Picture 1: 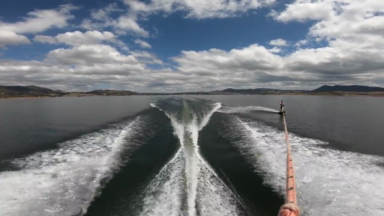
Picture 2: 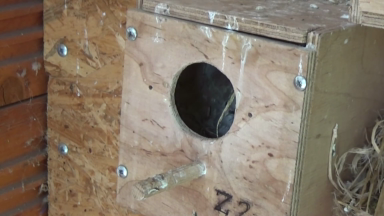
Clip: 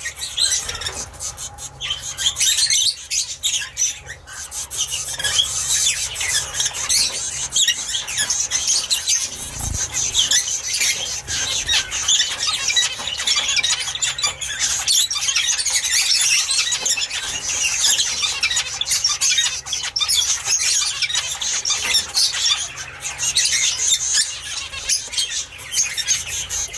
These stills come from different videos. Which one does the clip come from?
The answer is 2